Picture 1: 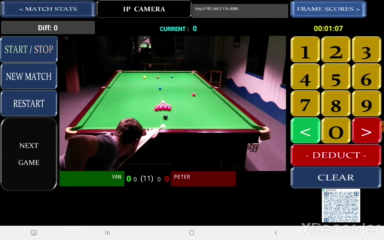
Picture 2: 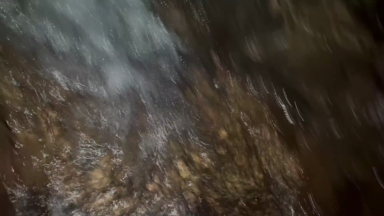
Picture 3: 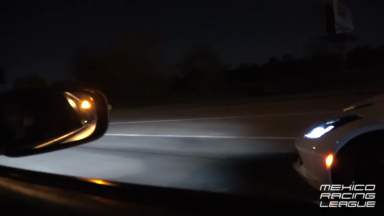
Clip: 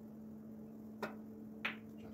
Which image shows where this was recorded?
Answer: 1